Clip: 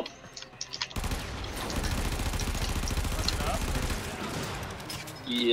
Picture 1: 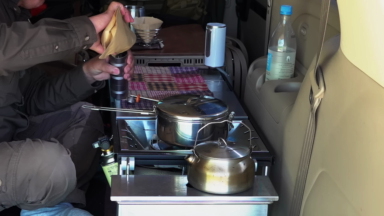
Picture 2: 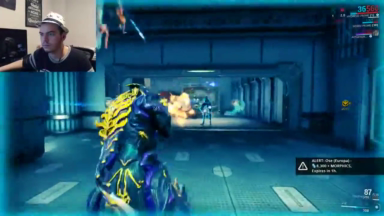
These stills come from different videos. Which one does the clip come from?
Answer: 2